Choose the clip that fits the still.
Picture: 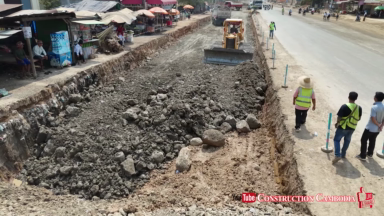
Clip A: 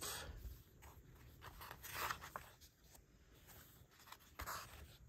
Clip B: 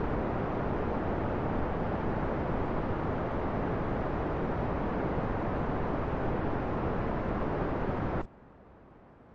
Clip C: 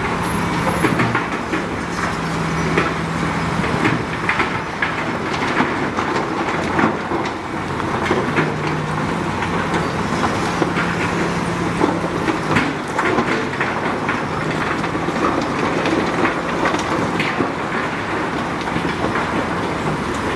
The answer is C